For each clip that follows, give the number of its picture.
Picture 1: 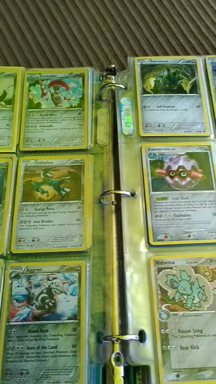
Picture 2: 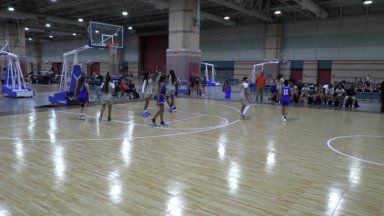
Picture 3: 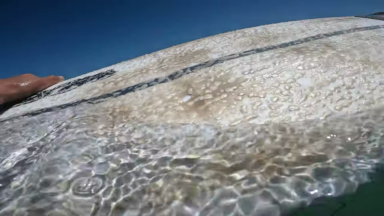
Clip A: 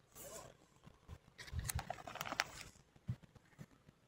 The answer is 1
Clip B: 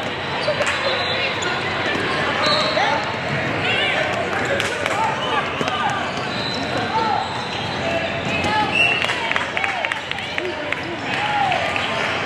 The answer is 2